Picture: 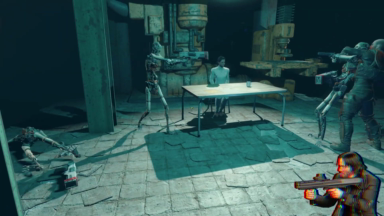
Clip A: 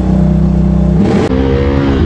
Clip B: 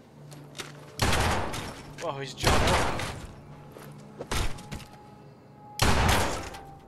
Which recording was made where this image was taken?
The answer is B